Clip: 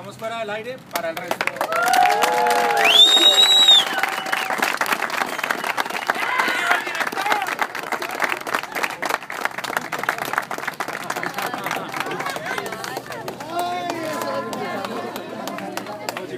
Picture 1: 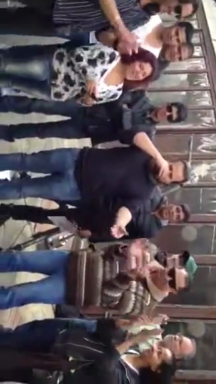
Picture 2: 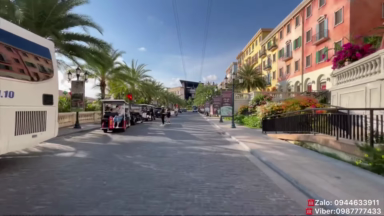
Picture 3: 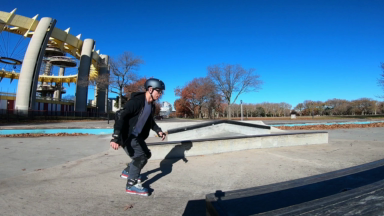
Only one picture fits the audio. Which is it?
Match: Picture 1